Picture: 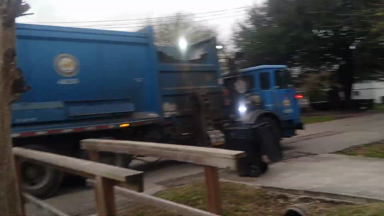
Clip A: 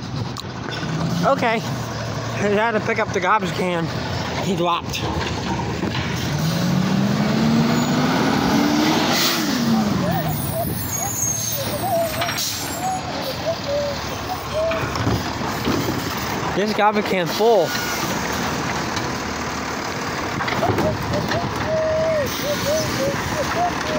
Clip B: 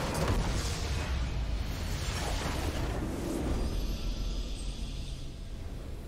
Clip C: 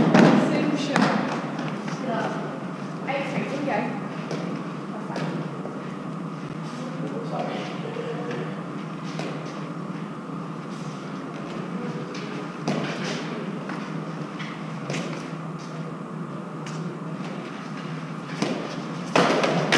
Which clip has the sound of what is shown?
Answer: A